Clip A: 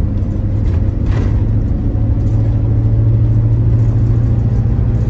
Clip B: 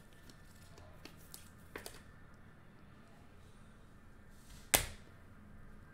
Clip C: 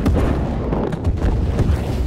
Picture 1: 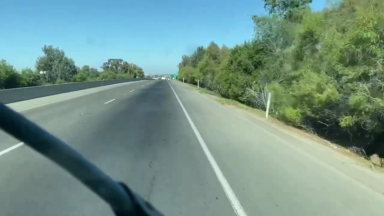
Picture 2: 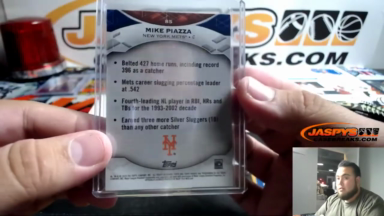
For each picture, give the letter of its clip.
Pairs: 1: A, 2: B